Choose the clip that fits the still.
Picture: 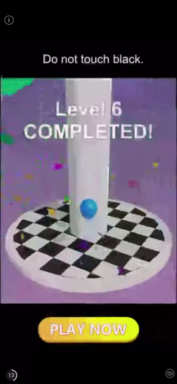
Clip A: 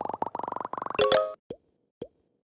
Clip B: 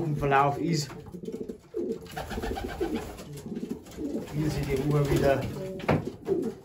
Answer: A